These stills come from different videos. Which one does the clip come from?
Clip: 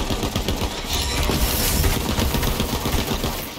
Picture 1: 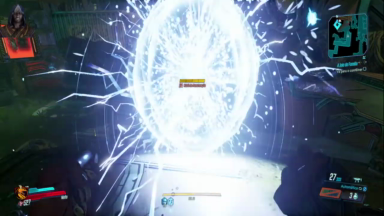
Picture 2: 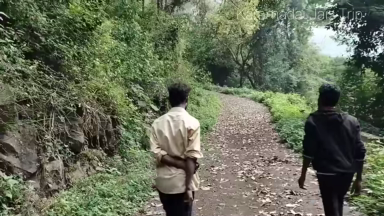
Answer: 1